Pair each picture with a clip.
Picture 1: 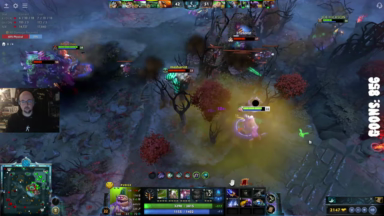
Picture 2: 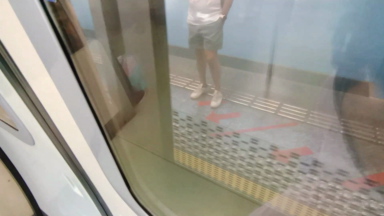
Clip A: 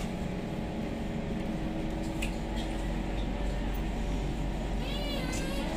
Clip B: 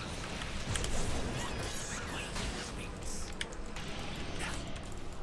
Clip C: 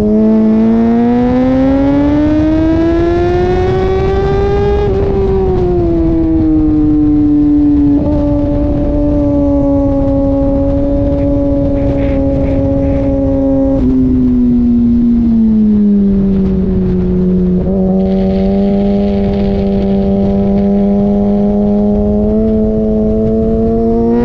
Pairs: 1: B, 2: A